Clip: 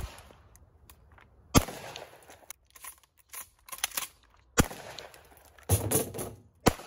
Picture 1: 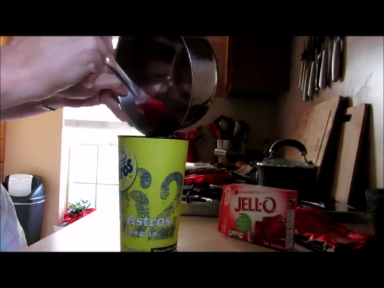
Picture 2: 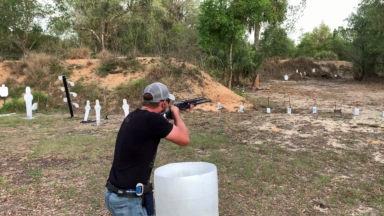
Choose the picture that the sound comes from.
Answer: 2